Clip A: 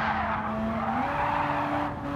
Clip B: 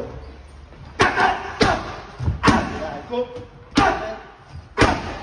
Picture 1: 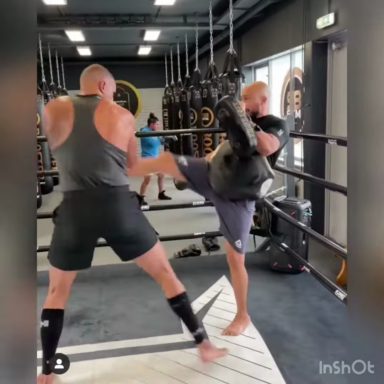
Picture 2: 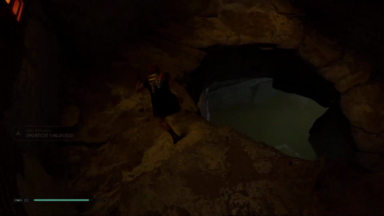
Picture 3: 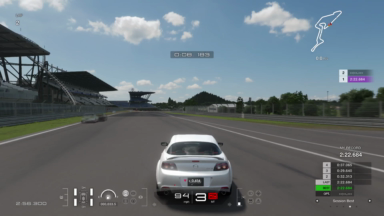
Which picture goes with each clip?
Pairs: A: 3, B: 1